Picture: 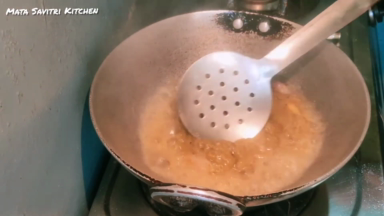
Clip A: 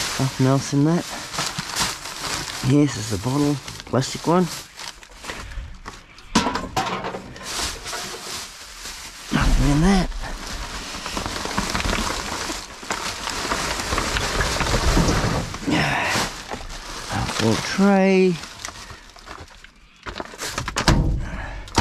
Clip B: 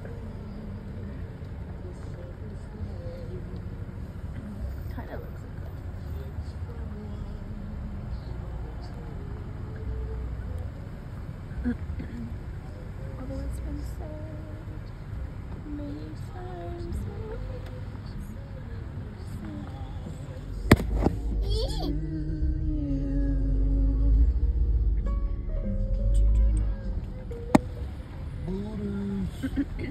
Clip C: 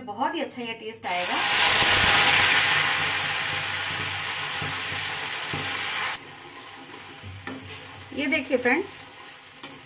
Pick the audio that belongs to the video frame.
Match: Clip C